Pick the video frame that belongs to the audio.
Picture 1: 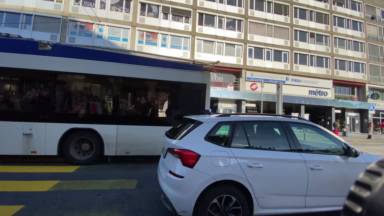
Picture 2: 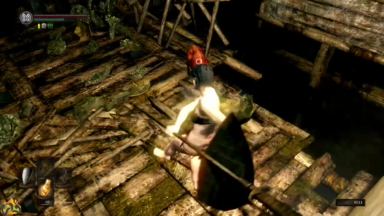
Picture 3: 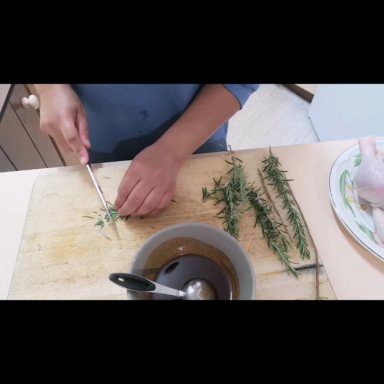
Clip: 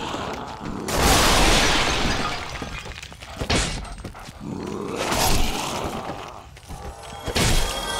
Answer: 2